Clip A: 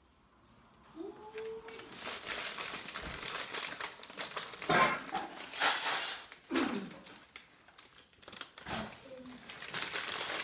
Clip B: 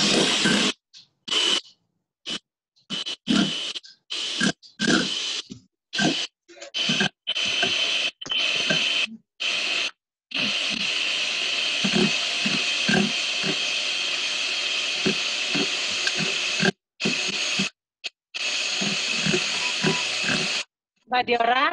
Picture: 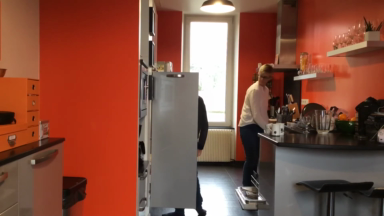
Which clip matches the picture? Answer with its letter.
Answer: A